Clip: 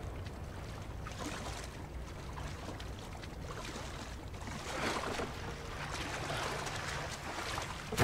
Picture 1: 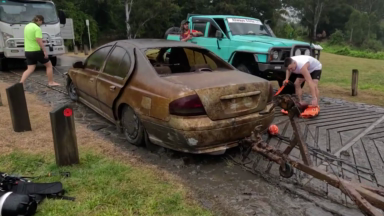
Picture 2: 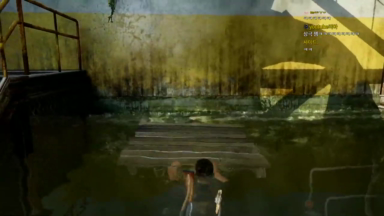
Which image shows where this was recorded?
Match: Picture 2